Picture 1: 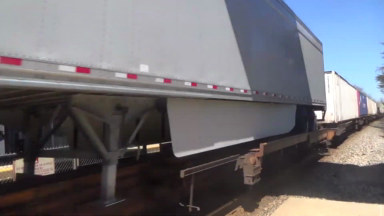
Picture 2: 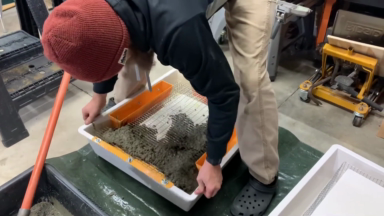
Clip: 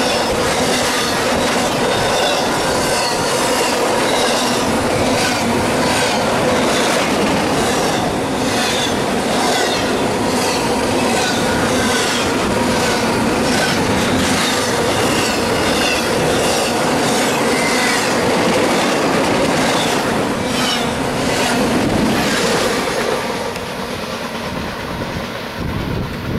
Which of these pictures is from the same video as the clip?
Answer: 1